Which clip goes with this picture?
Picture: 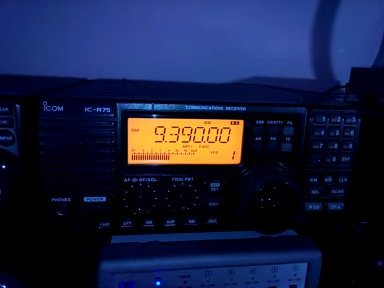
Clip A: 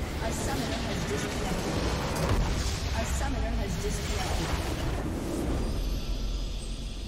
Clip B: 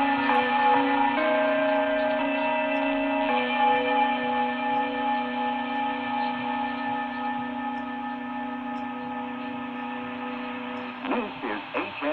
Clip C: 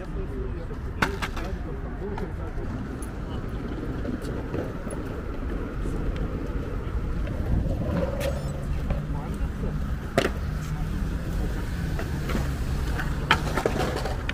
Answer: B